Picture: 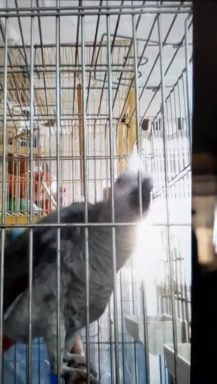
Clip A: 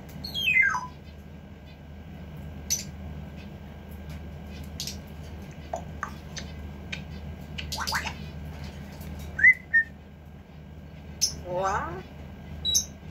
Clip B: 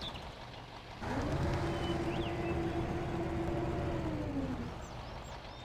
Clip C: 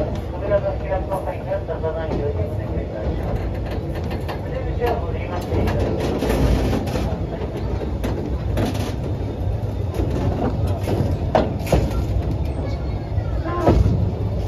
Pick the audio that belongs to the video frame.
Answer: A